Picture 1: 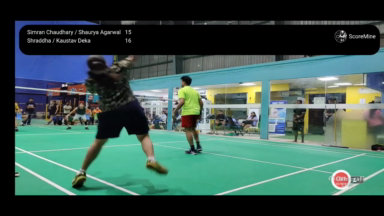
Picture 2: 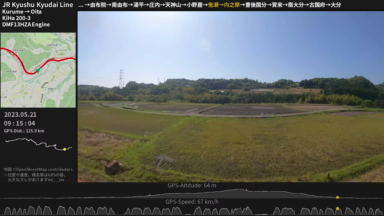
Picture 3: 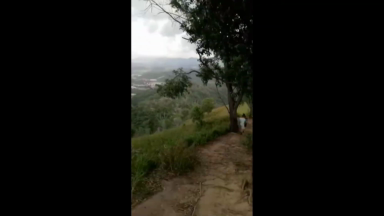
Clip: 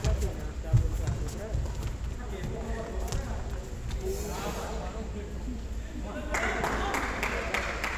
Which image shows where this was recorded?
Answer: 1